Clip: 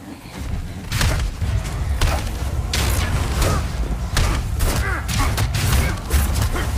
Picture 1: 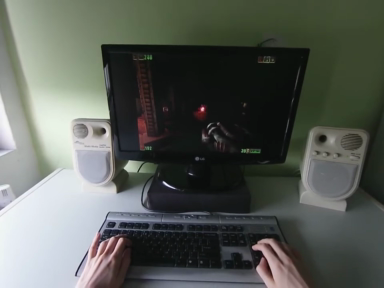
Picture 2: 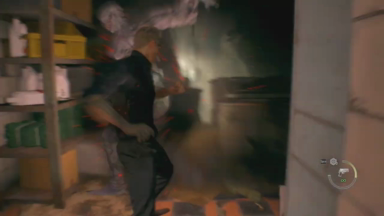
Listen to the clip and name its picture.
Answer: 2